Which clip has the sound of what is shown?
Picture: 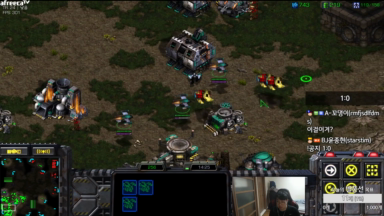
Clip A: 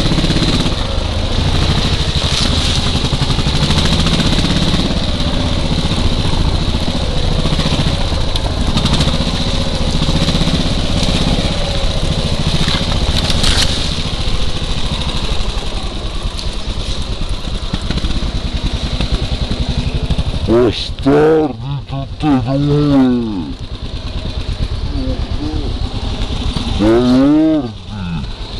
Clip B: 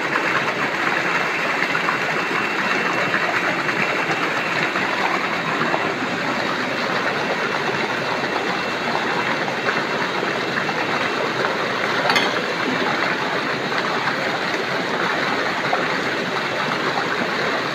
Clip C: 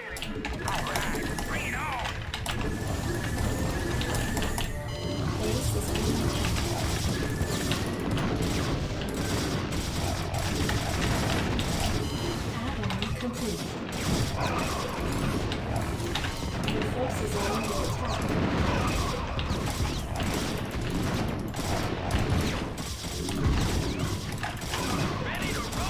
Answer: C